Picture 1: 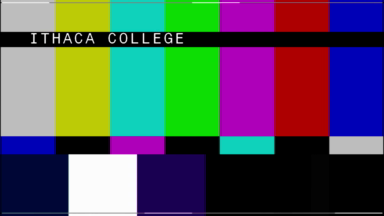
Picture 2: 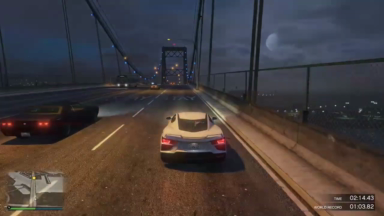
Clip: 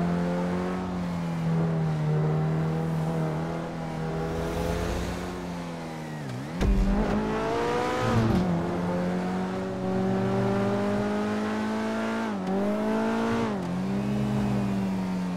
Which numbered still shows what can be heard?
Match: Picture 2